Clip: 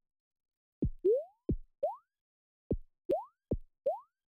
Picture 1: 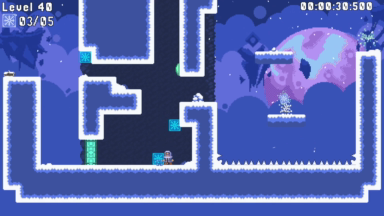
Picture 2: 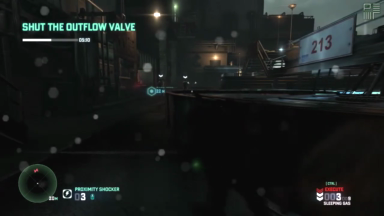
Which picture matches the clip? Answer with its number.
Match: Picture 1